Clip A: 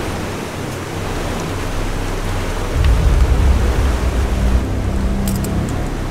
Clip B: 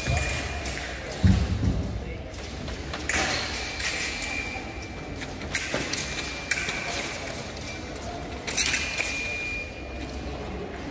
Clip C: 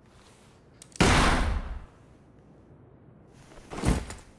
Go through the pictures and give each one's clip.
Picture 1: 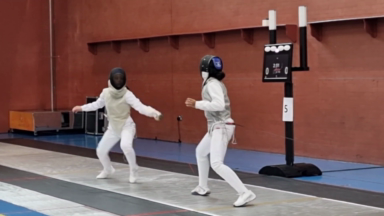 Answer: B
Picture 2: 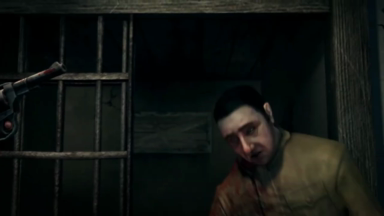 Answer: C